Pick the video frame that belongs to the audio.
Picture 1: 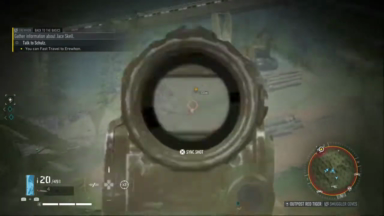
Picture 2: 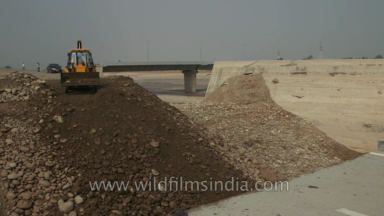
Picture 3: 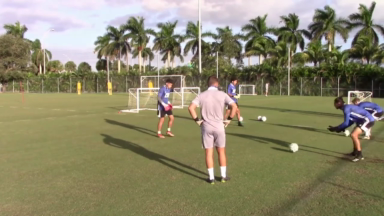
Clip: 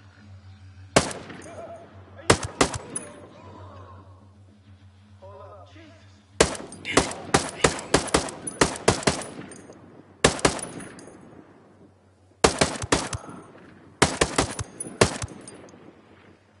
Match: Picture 1